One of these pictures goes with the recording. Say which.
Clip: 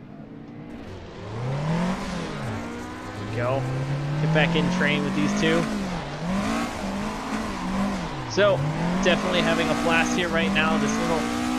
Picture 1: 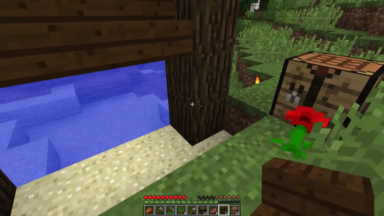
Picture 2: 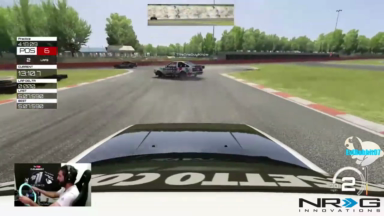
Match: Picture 2